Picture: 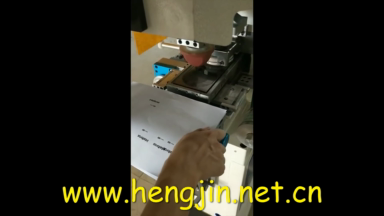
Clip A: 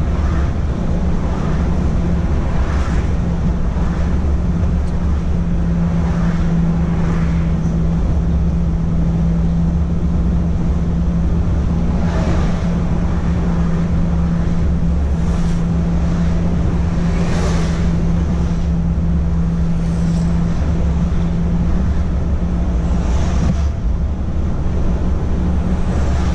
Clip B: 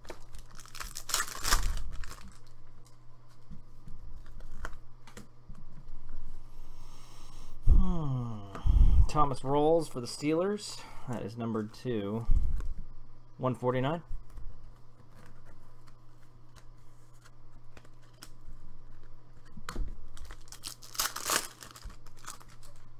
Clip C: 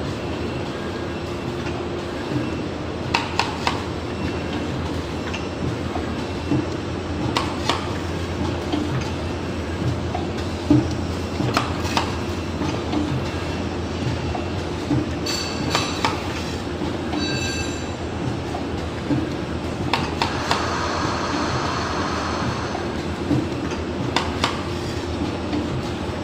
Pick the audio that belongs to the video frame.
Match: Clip C